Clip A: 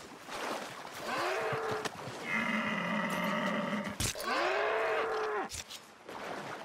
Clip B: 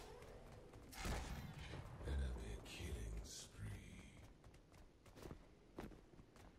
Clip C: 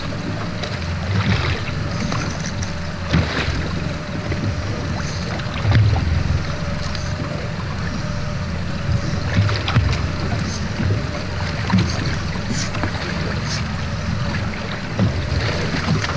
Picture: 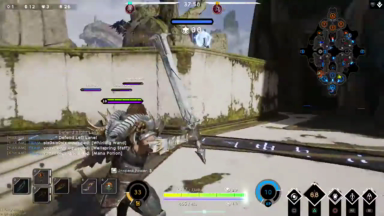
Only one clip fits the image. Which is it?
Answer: B